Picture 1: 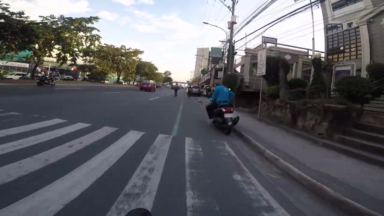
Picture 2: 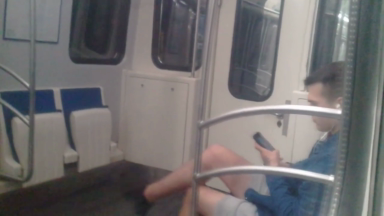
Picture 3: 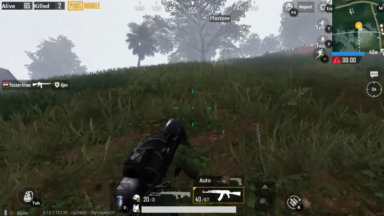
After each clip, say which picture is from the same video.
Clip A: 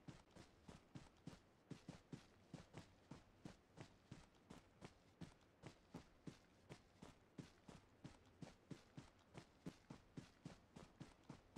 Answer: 3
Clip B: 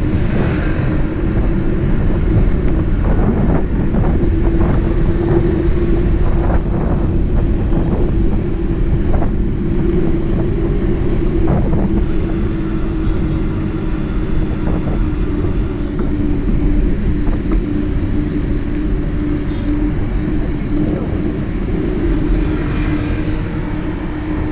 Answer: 1